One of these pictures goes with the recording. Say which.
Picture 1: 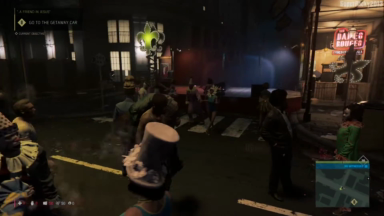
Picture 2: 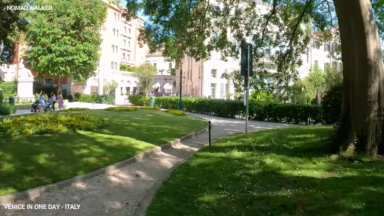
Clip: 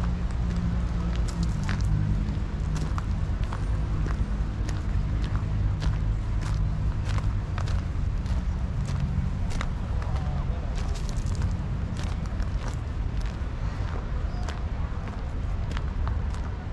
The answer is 2